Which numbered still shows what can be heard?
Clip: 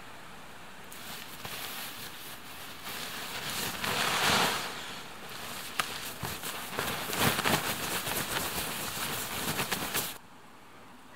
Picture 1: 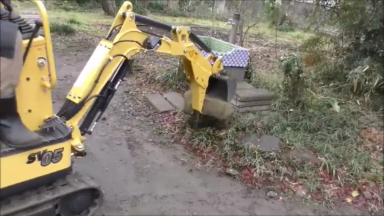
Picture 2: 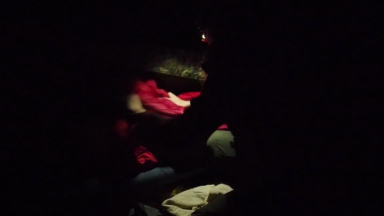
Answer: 2